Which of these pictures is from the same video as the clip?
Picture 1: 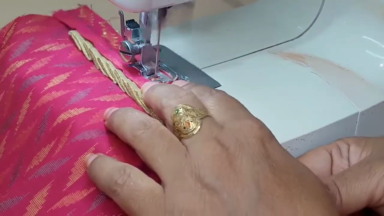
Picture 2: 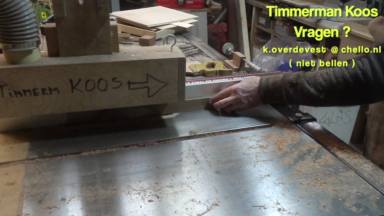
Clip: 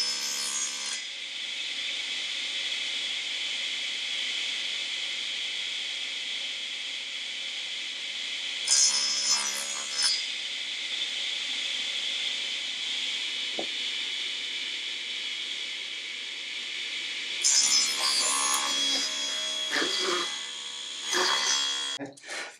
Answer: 2